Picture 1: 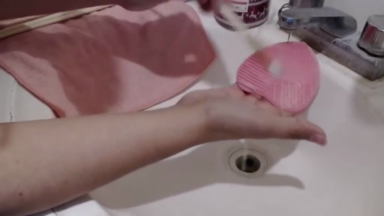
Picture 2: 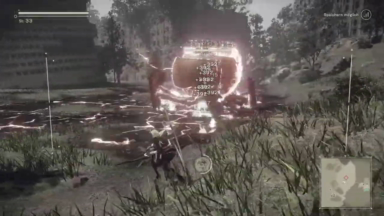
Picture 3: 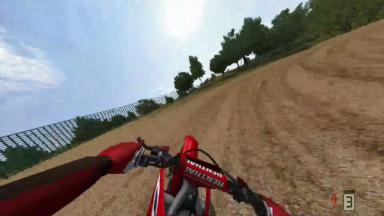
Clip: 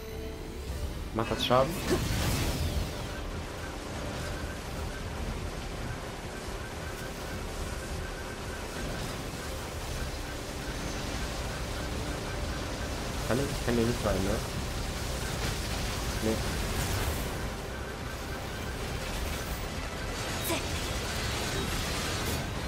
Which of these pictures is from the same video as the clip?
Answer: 2